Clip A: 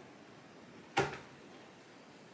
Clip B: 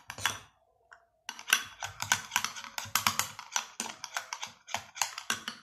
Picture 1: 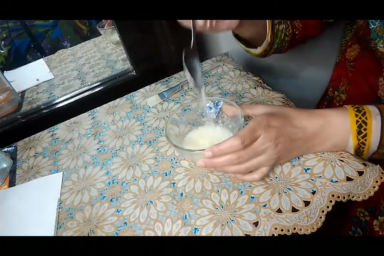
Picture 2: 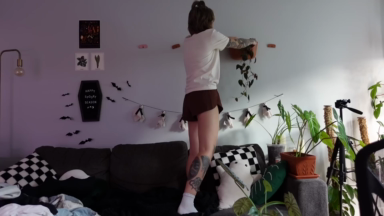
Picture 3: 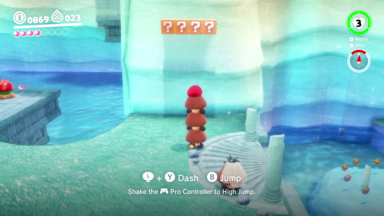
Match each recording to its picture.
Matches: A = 2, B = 1